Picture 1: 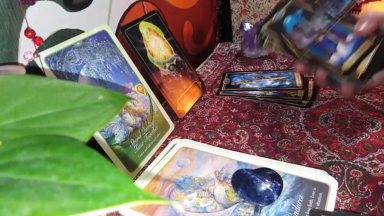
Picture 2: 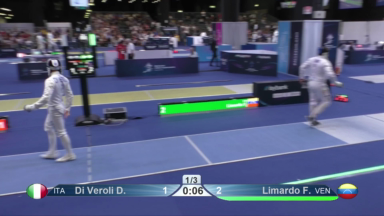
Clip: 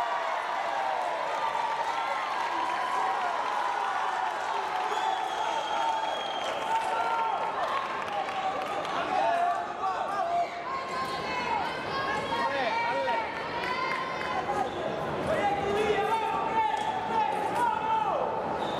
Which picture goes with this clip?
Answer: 2